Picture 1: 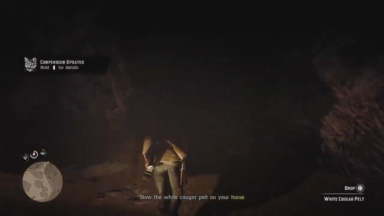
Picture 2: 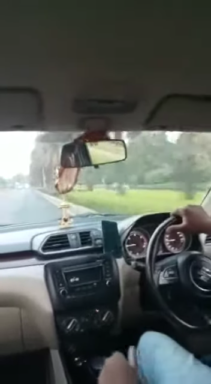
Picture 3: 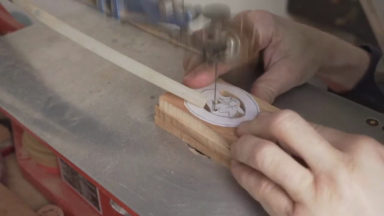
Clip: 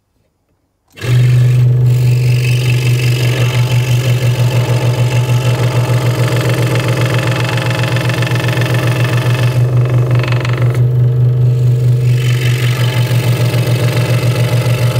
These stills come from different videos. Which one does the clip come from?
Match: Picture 3